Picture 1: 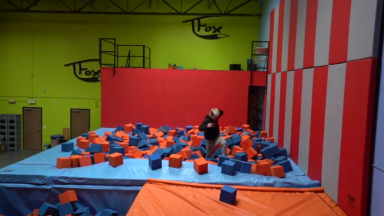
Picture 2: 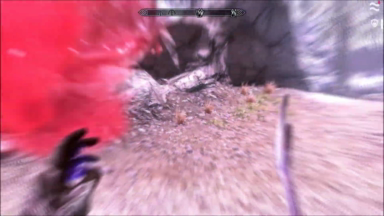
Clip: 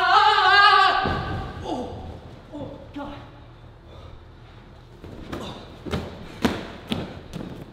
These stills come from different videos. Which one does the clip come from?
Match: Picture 1